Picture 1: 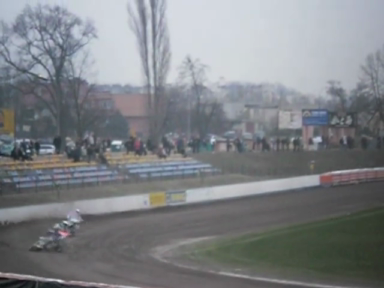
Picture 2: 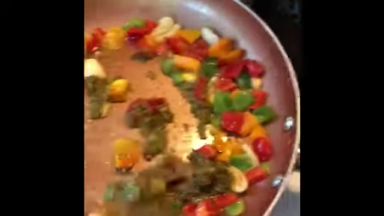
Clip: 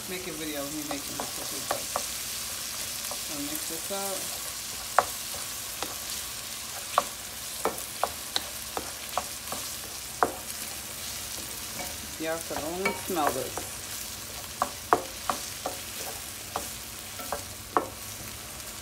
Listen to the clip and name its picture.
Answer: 2